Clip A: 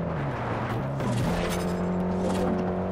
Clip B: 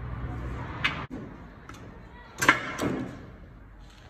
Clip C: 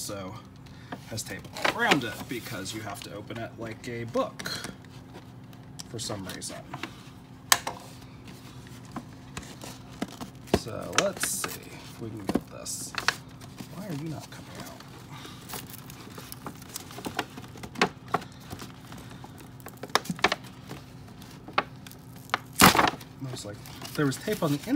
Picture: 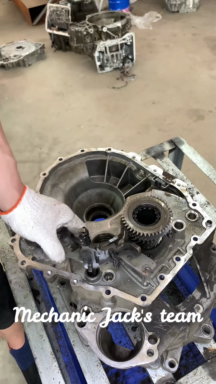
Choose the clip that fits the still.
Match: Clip B